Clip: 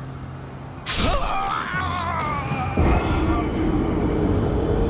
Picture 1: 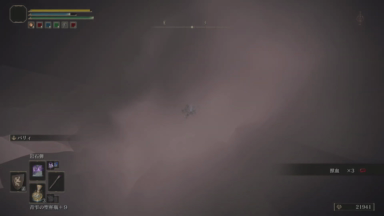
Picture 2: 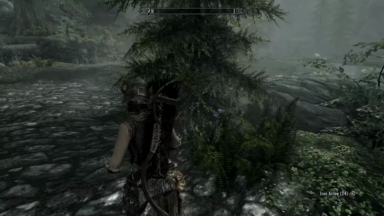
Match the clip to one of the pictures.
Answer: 1